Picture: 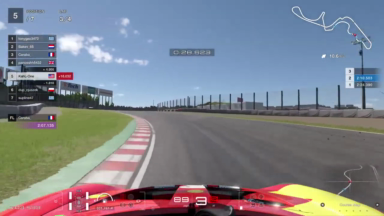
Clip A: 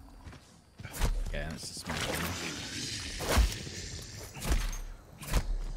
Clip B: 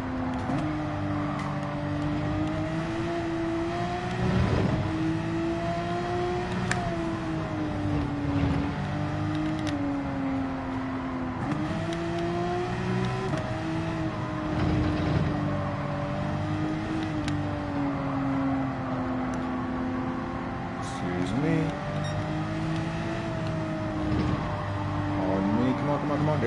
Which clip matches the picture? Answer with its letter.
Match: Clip B